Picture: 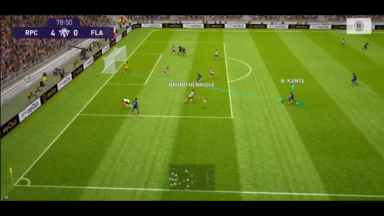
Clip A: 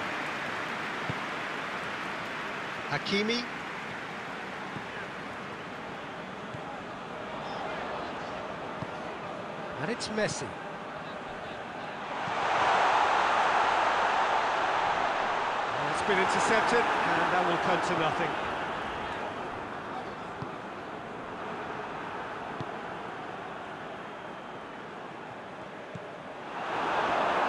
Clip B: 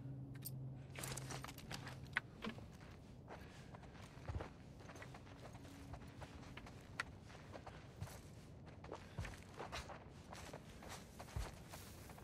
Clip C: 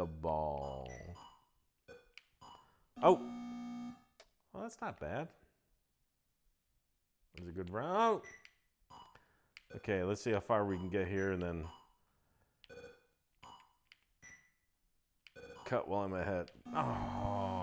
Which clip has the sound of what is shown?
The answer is A